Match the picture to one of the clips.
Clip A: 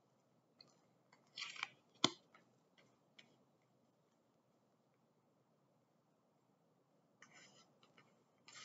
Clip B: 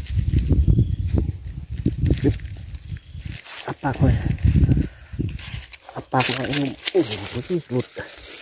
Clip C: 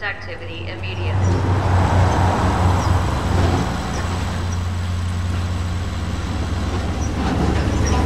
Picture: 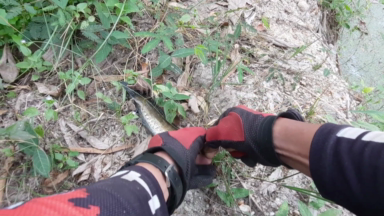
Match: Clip B